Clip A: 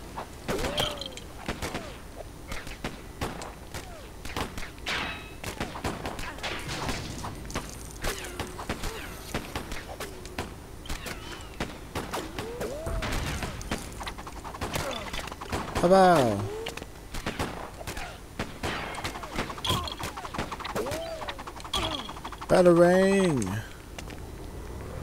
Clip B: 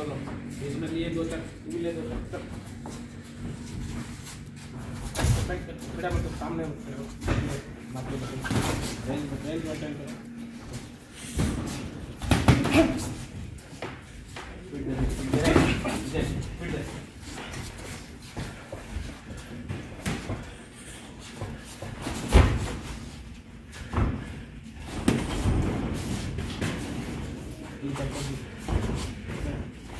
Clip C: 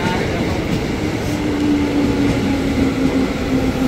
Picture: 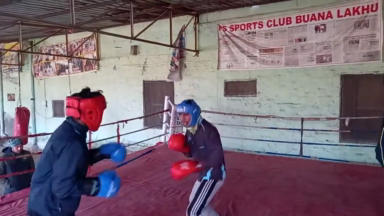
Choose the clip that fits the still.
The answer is B